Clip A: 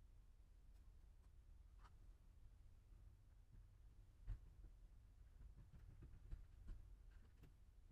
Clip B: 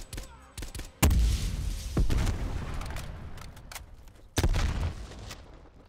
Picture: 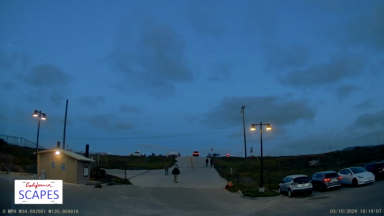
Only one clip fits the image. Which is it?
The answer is A